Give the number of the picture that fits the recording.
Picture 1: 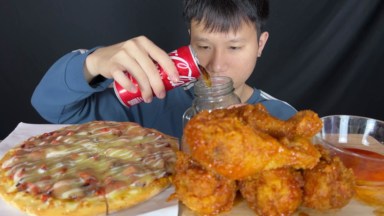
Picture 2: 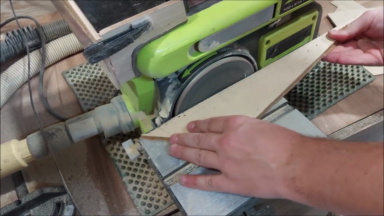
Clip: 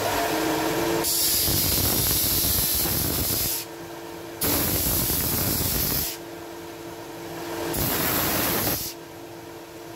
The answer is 2